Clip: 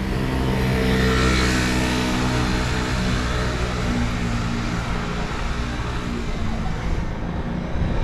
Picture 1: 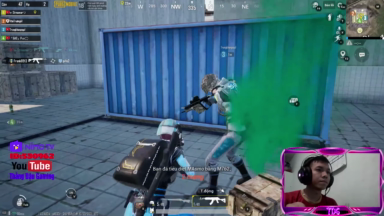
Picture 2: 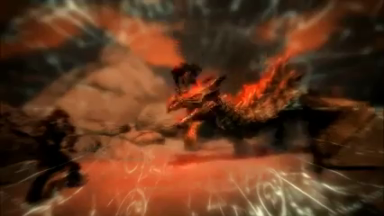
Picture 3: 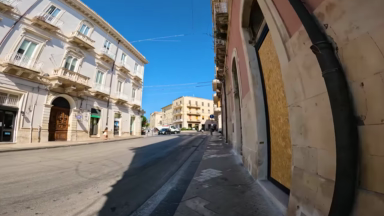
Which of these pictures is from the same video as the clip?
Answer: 3